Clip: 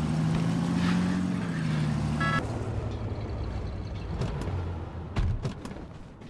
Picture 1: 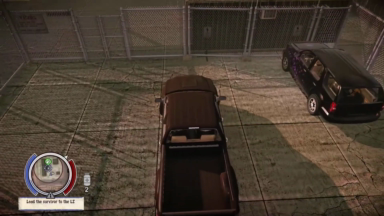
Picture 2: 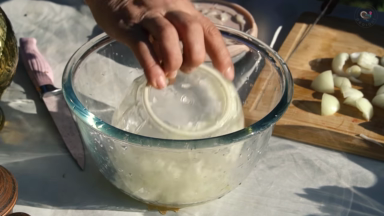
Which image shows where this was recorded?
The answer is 1